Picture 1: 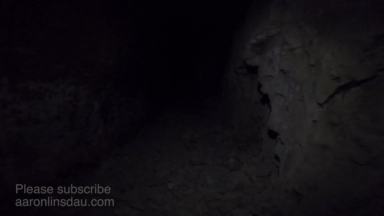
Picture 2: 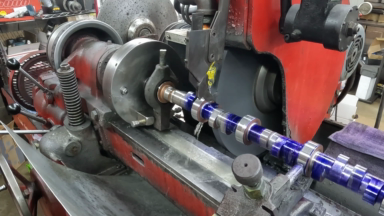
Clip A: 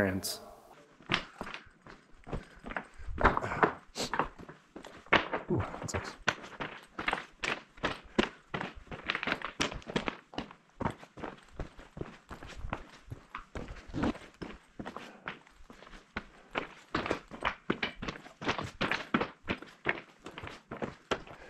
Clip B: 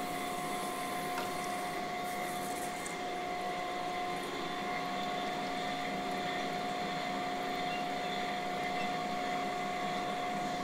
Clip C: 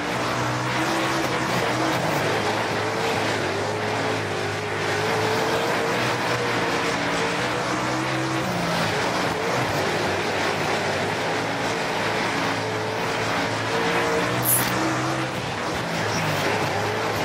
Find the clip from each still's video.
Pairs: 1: A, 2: B